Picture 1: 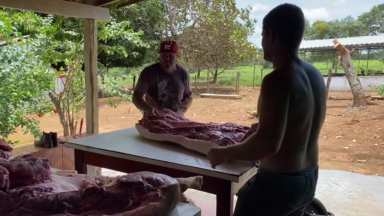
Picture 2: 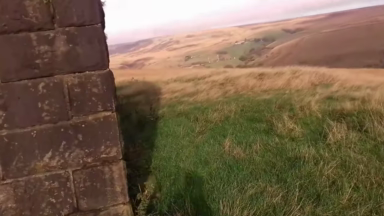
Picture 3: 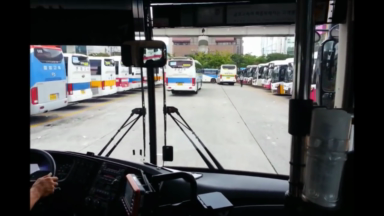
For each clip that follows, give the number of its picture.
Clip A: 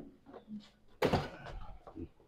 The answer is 1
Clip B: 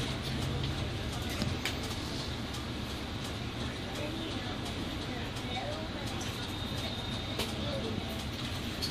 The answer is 3